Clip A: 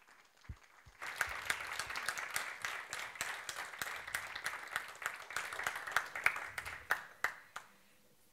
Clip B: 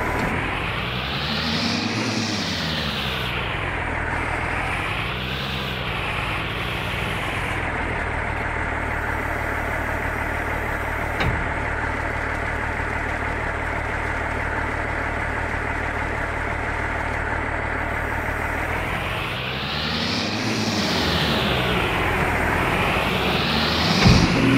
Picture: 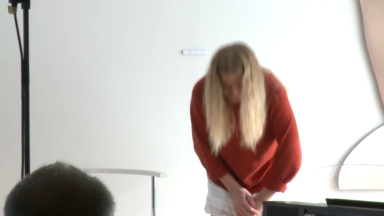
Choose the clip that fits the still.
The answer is A